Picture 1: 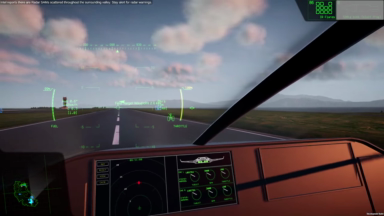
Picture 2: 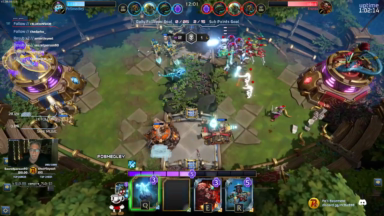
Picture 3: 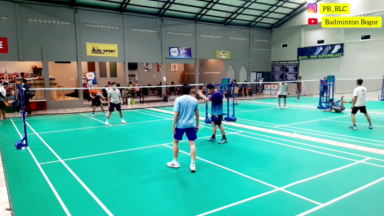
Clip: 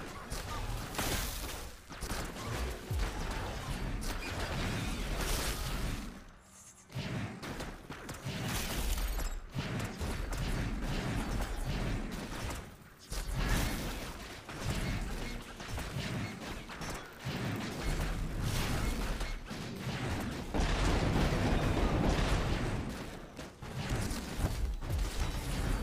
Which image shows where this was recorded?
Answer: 2